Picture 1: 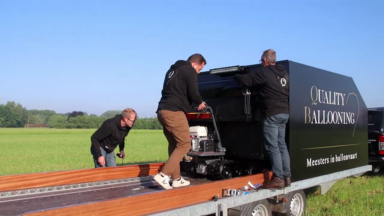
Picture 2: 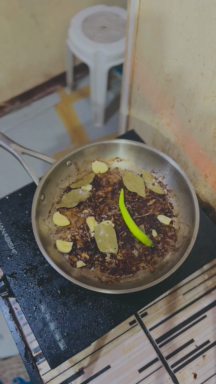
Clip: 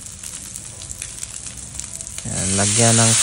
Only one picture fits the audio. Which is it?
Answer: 2